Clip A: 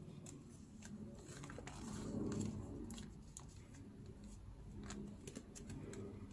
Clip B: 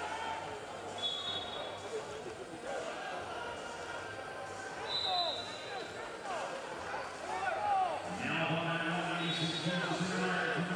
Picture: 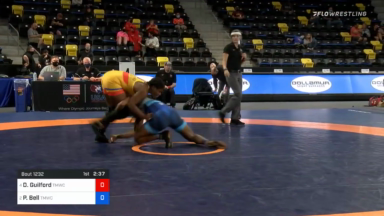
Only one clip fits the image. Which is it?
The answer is B